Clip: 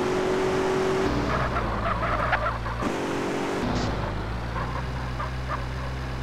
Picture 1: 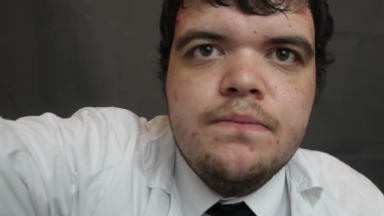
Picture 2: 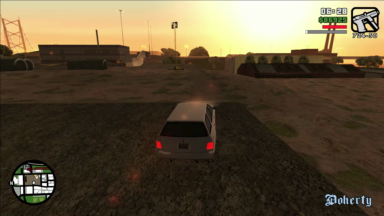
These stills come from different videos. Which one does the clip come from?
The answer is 2